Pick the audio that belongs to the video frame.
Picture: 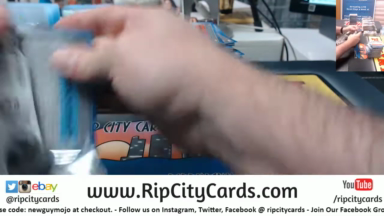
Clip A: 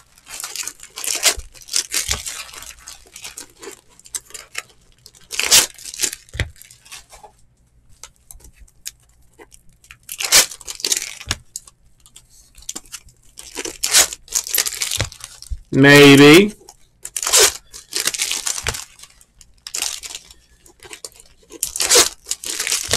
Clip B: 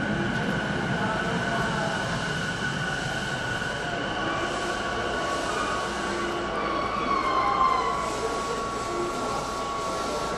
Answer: A